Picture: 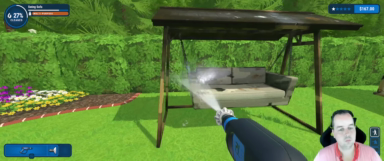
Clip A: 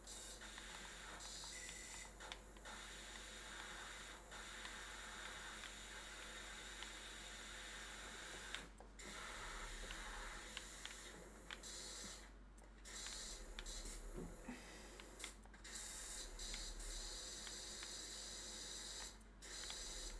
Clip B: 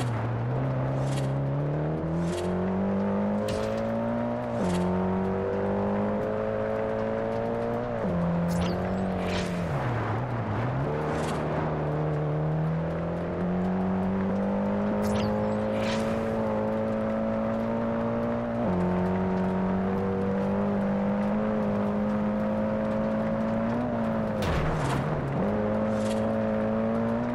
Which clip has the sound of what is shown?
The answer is A